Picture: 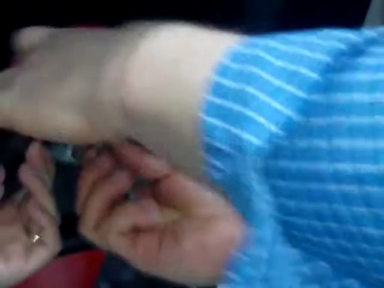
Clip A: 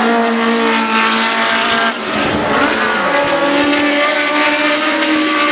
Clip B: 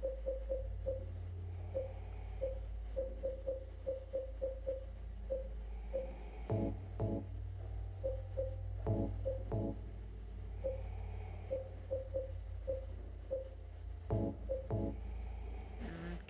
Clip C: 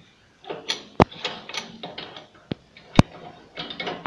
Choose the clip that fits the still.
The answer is C